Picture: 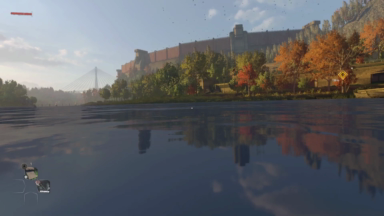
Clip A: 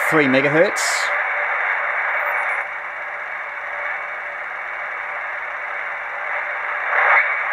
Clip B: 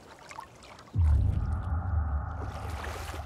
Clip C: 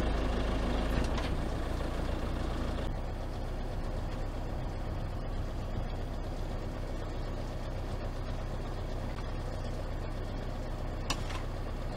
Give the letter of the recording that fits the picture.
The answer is B